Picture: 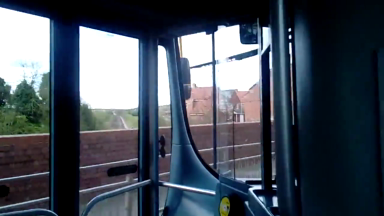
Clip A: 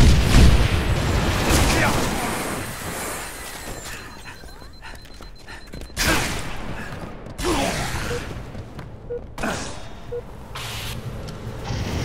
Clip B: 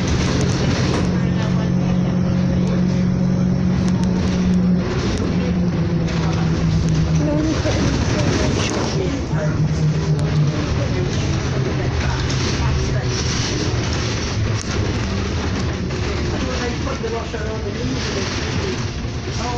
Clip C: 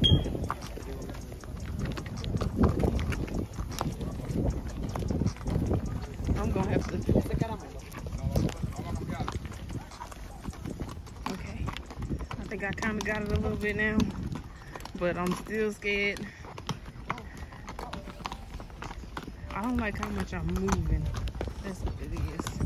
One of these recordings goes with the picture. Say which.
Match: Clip B